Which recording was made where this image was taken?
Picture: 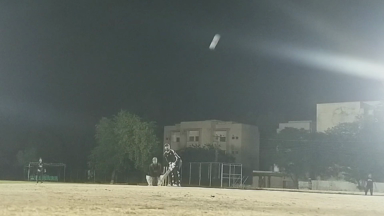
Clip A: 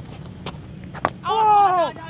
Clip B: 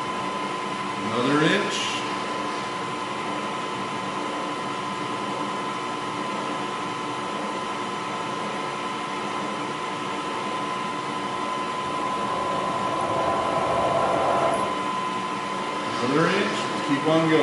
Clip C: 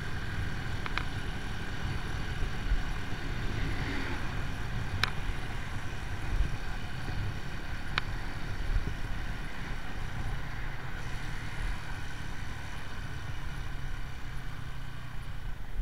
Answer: A